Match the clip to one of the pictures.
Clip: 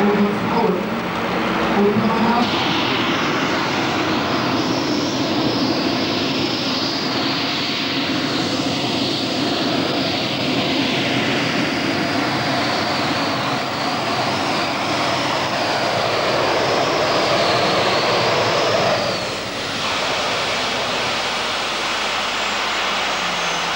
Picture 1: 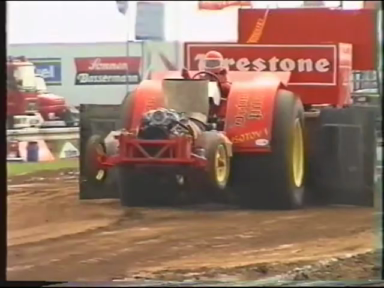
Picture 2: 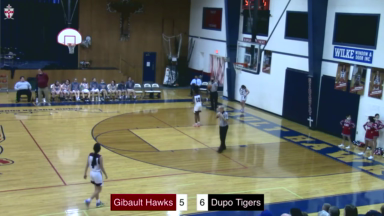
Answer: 1